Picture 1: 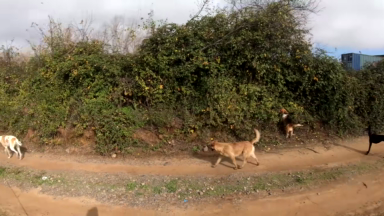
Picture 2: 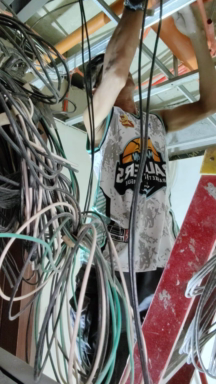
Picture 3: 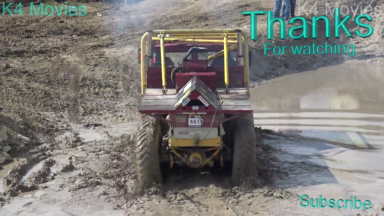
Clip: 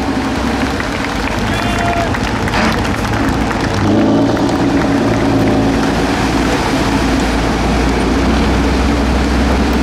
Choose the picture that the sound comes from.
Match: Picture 3